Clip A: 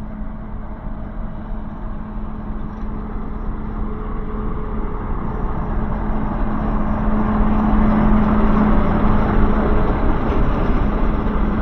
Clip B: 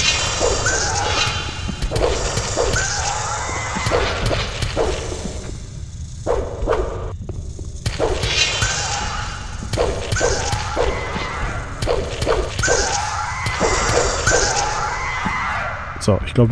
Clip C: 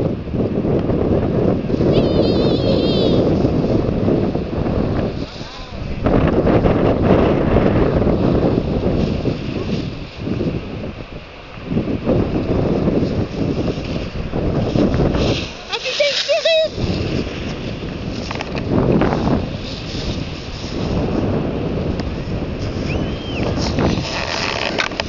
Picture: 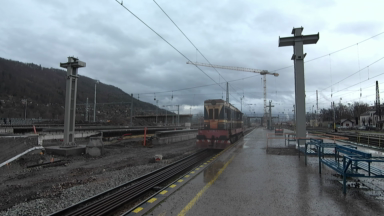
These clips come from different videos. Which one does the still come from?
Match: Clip A